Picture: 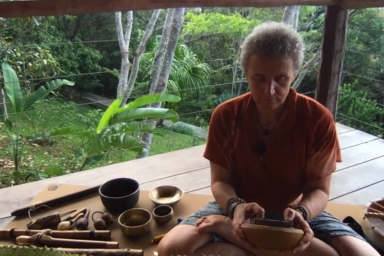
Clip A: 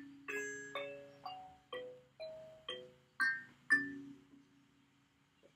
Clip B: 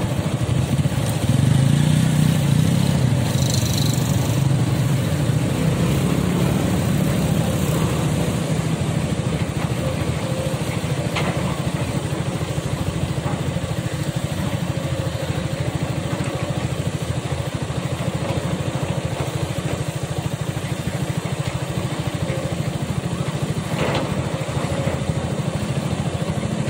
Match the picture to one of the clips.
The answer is A